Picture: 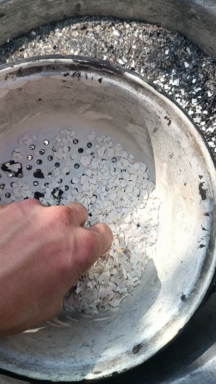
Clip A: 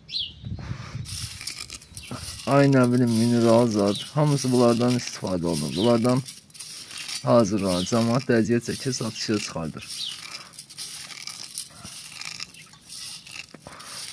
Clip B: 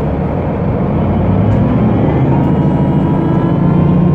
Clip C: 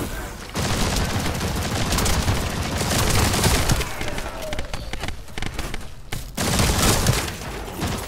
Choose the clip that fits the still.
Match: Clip A